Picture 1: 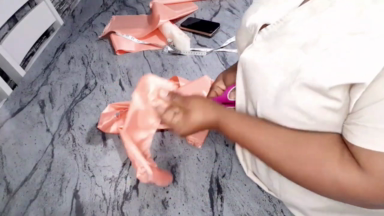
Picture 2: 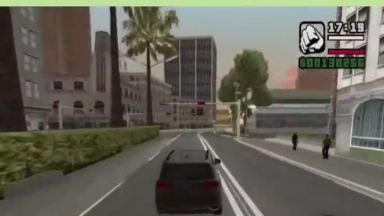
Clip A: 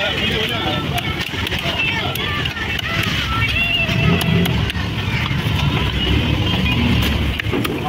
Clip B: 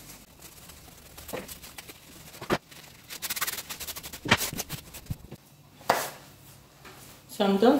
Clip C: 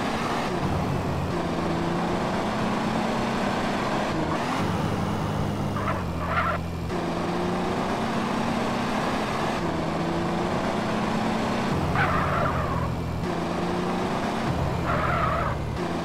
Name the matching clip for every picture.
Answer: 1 B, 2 C